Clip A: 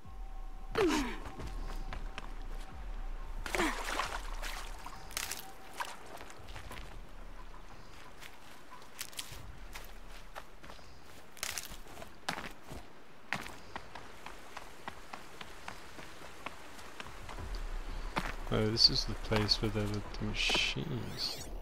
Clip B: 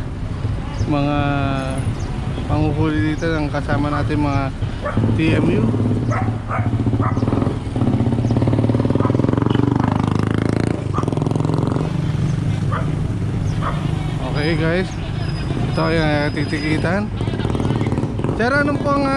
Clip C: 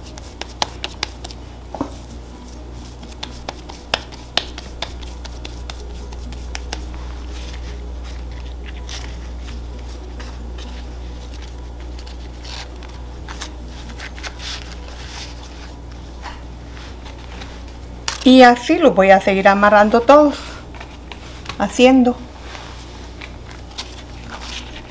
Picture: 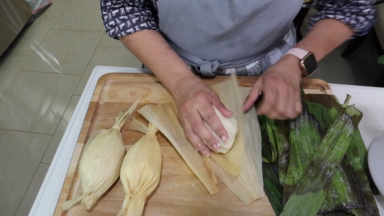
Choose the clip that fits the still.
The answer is C